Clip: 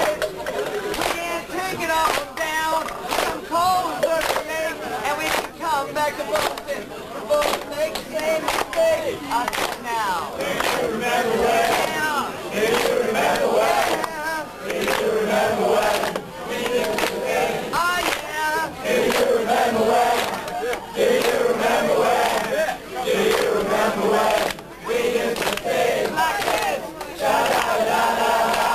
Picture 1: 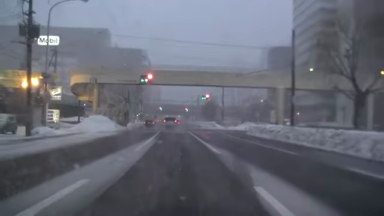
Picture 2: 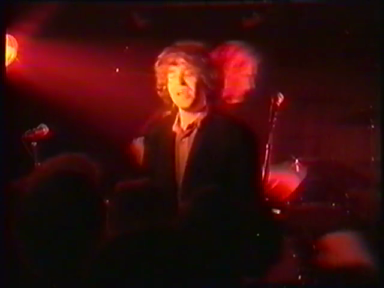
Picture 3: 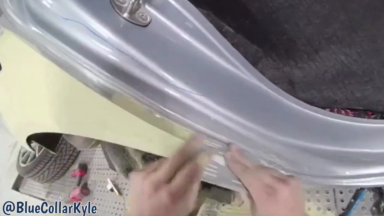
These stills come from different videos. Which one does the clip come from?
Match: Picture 2